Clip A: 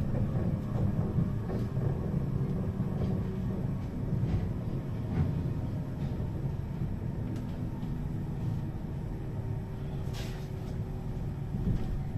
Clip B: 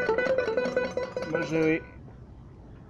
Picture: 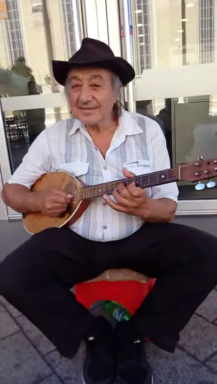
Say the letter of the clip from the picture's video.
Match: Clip B